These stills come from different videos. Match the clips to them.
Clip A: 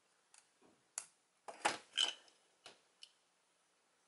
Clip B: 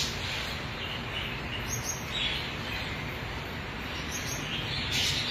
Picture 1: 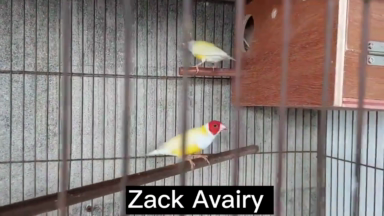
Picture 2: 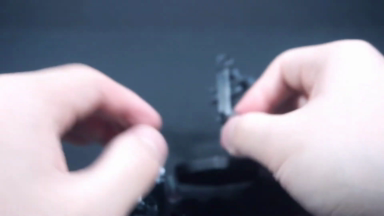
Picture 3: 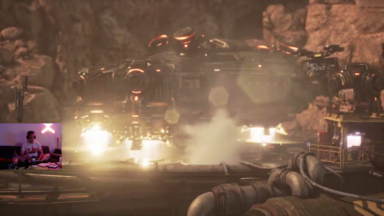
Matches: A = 2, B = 1